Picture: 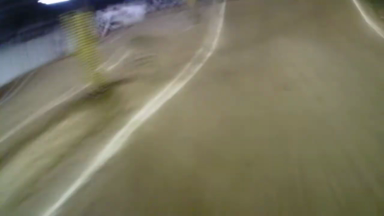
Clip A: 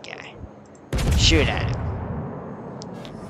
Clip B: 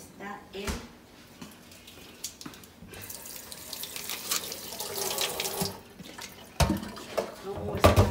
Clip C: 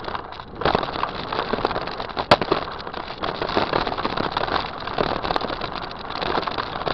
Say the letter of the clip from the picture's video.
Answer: C